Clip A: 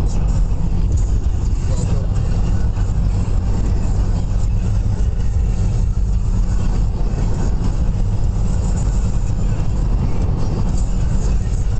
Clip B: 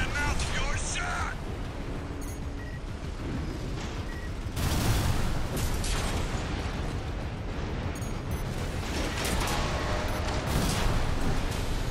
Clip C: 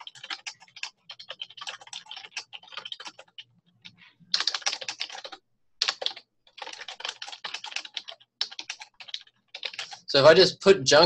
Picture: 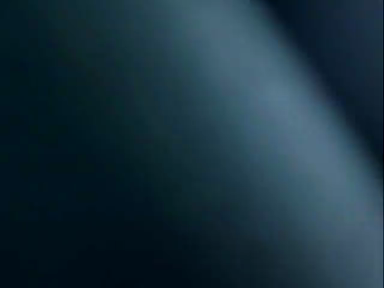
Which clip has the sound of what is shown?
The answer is A